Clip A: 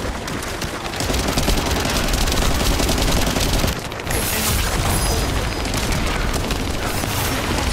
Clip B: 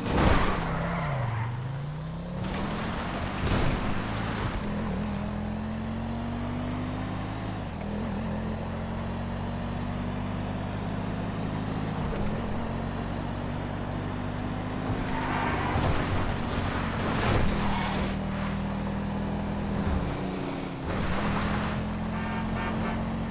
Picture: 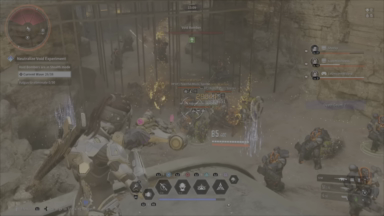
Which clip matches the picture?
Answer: A